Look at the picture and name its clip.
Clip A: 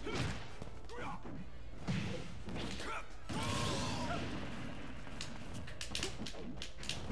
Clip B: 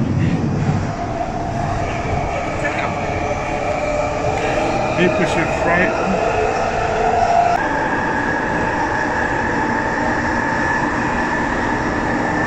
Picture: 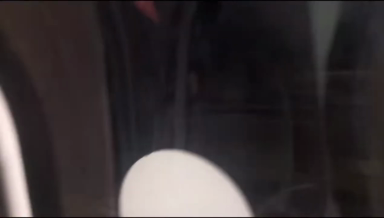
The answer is B